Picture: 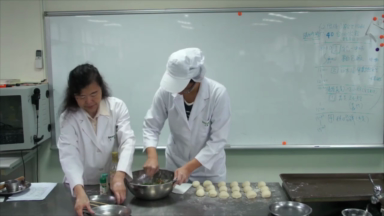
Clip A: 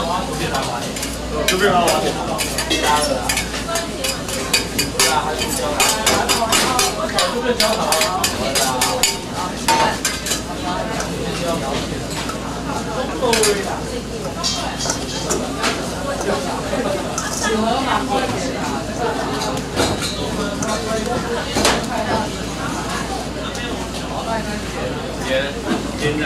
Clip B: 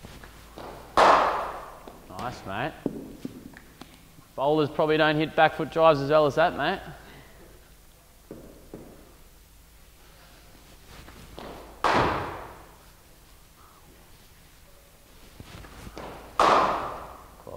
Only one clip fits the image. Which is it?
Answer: A